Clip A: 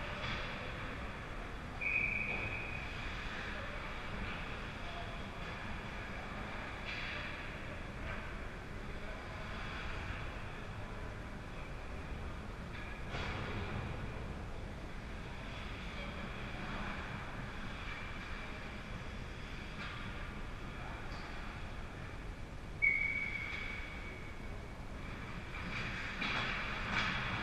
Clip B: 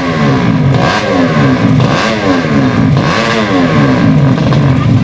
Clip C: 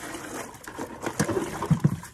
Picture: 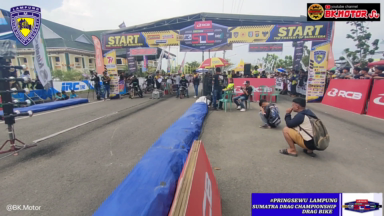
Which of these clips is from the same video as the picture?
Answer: B